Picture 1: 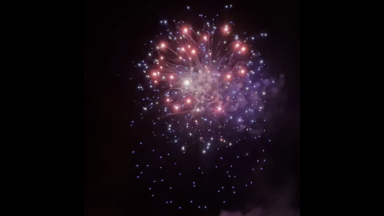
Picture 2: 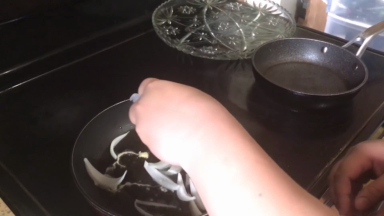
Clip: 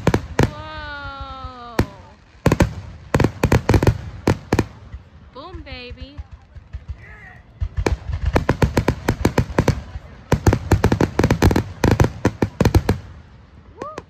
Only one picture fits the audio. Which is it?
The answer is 1